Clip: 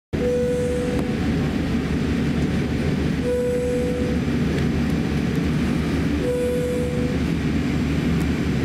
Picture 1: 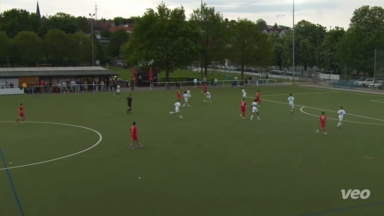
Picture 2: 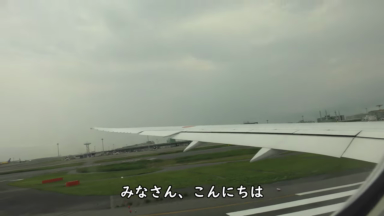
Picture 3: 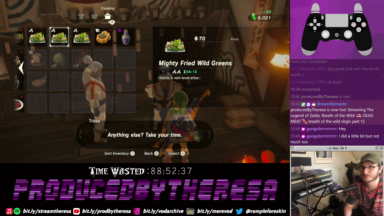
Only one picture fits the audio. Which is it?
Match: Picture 2